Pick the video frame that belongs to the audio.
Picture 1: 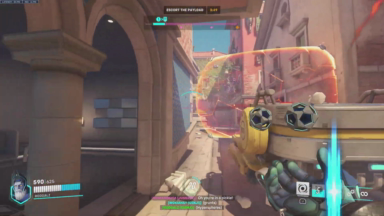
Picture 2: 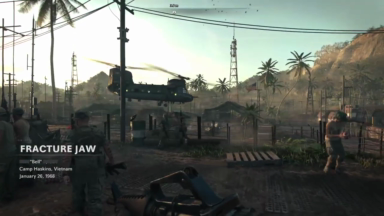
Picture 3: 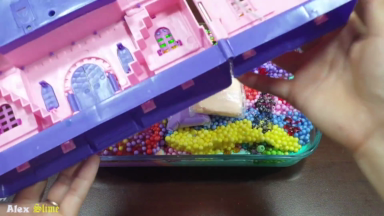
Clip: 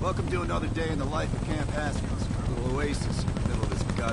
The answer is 2